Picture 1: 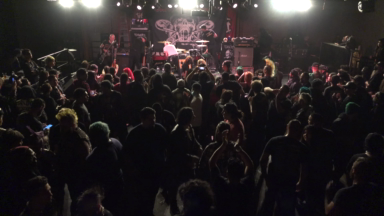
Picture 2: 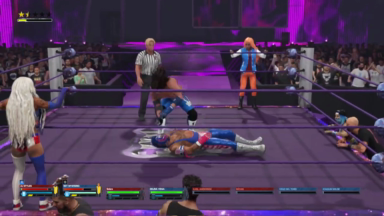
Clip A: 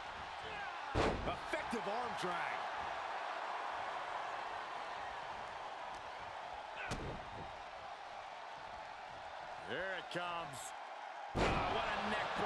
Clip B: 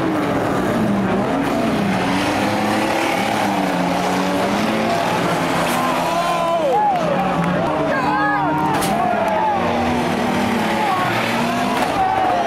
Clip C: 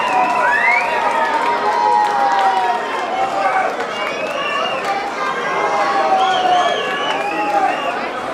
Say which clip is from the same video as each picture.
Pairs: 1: C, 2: A